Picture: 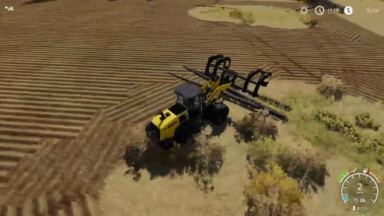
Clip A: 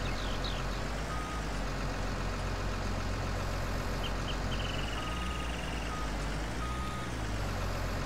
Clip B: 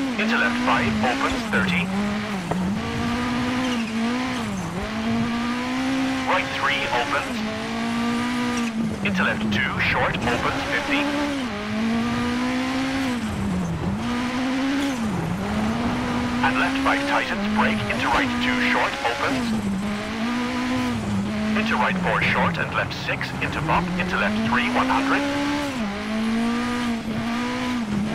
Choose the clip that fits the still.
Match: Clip A